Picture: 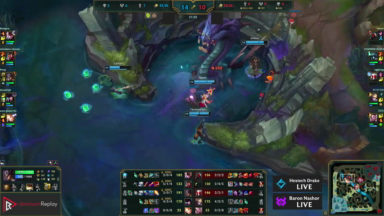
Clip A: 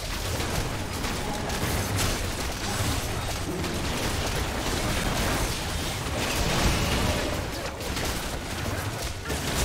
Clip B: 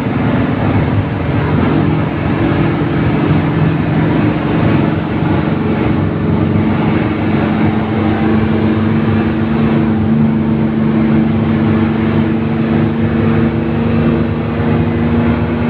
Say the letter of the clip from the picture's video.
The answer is A